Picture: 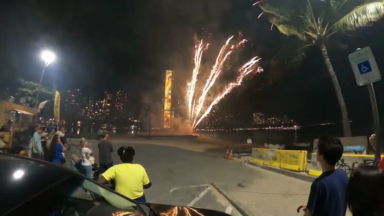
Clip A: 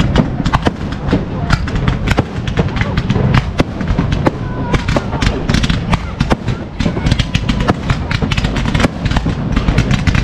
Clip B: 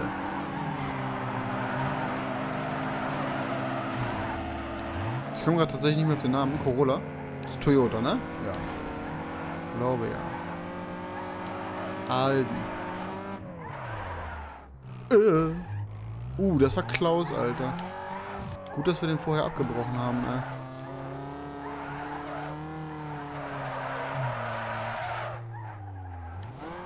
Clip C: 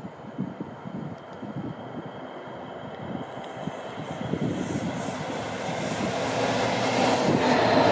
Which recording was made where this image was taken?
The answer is A